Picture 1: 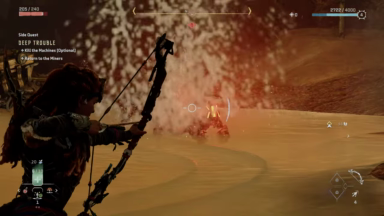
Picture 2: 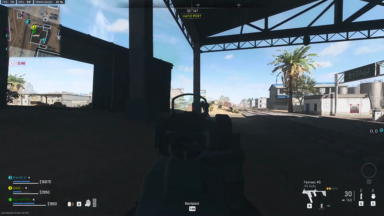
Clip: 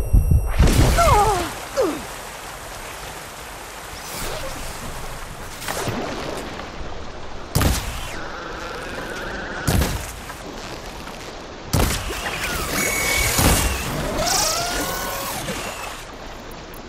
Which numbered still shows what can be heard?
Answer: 1